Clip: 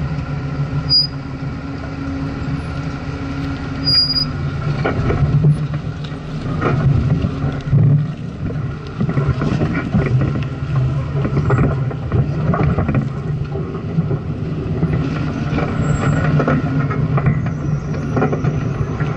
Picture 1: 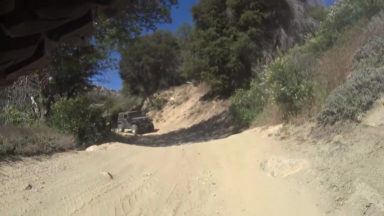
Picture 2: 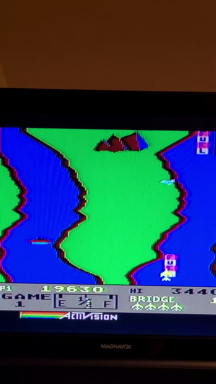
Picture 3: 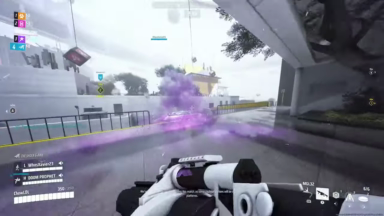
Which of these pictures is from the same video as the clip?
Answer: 1